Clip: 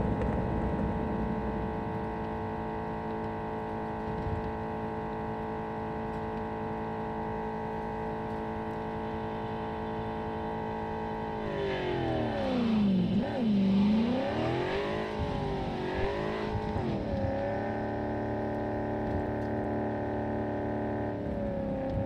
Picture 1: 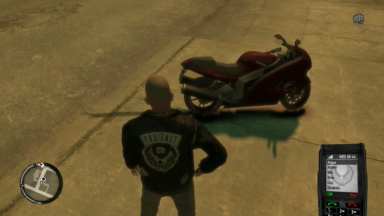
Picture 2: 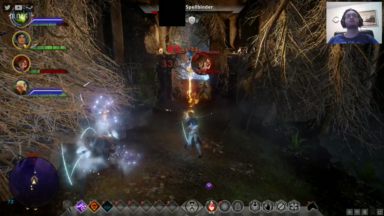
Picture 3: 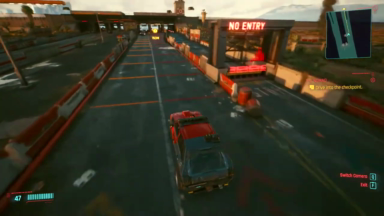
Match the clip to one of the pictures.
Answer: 3